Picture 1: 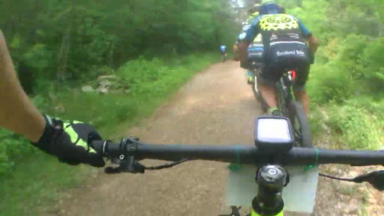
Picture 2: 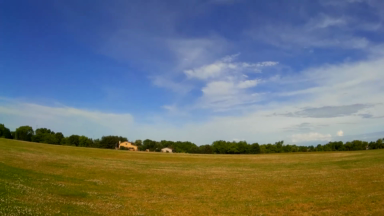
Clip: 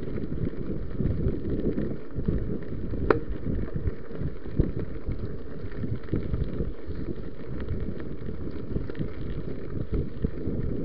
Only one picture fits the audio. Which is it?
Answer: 1